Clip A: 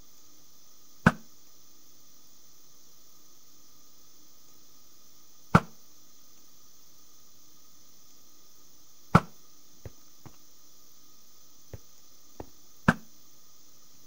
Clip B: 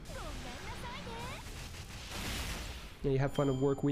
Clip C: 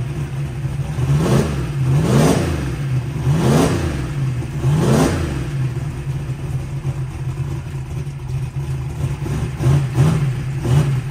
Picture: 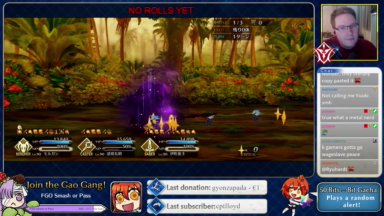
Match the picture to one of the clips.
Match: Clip B